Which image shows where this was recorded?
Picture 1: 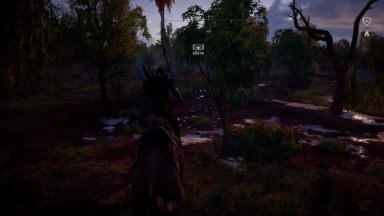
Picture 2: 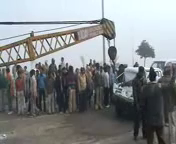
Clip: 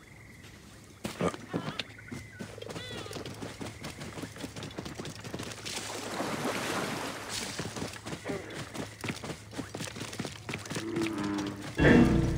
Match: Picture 1